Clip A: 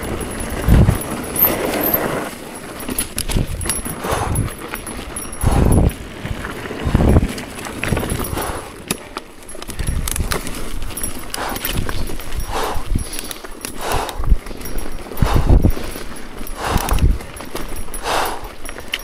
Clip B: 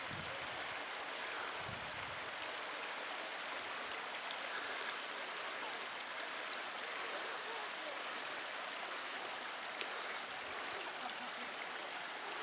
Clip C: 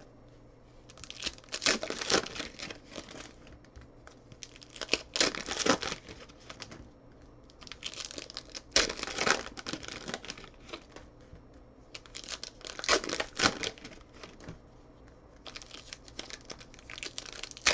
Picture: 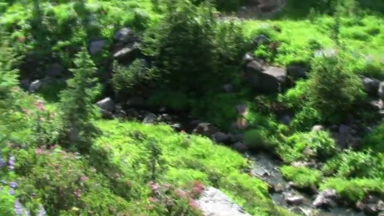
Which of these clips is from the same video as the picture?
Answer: B